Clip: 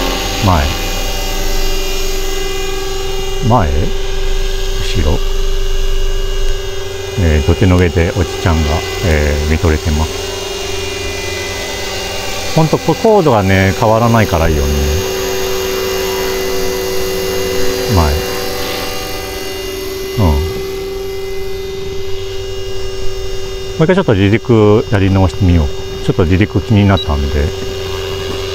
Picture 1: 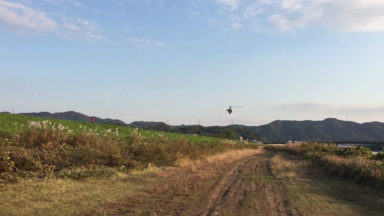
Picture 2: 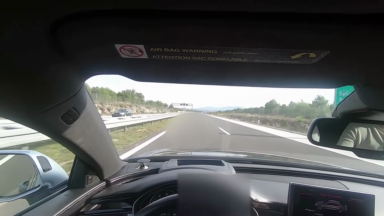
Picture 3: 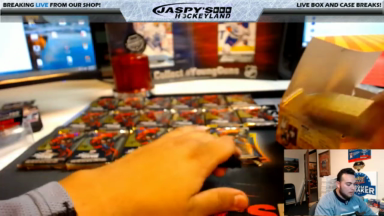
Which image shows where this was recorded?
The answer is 1